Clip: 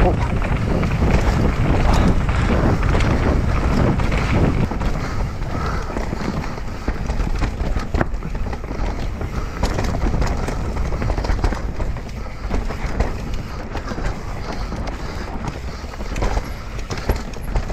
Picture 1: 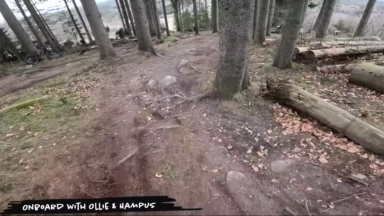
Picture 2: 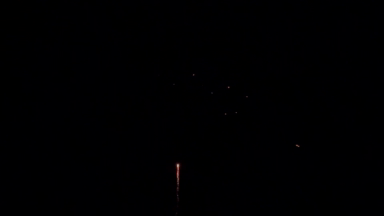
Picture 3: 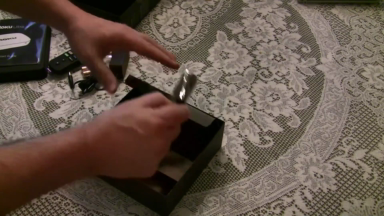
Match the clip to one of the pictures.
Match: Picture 1